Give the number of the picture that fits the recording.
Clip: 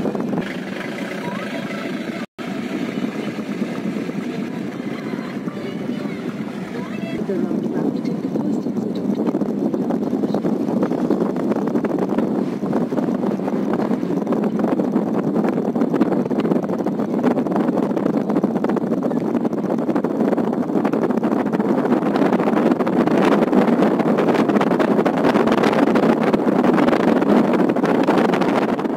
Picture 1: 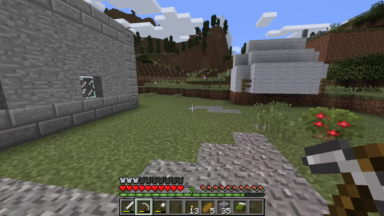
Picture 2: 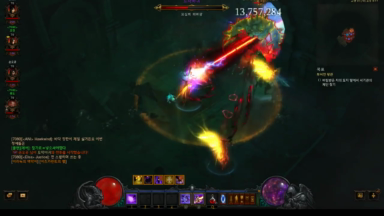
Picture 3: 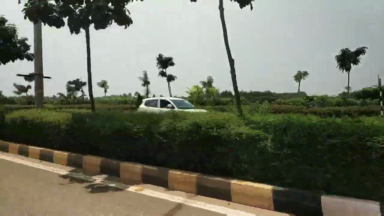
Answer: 3